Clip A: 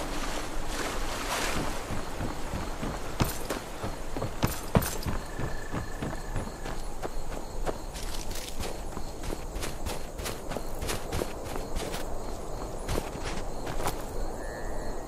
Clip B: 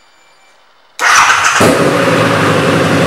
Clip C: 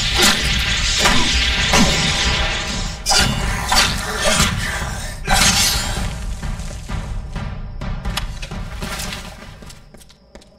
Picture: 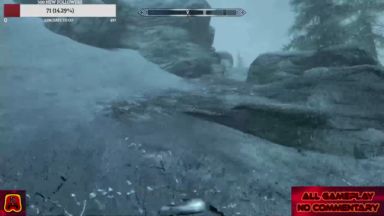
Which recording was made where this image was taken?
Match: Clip A